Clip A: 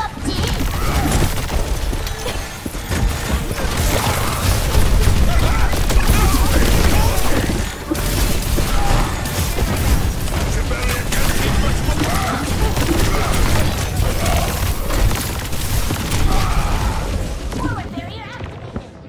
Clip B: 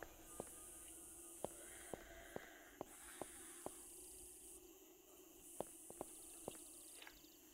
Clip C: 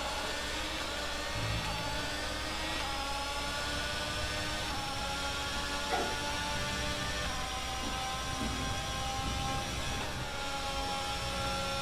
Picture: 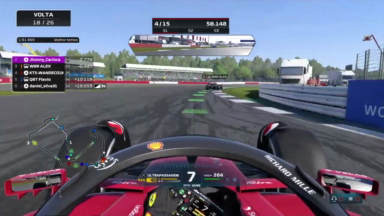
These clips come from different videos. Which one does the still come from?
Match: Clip C